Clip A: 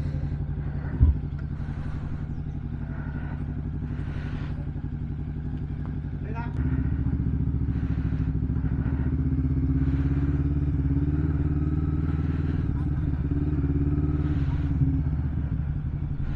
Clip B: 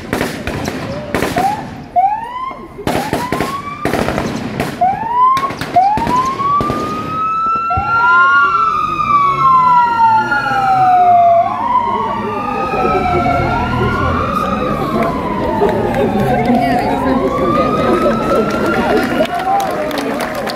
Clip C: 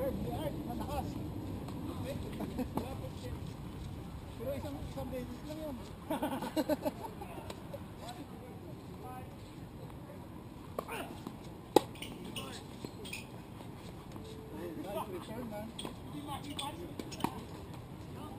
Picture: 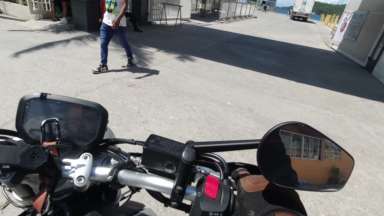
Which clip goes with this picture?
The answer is A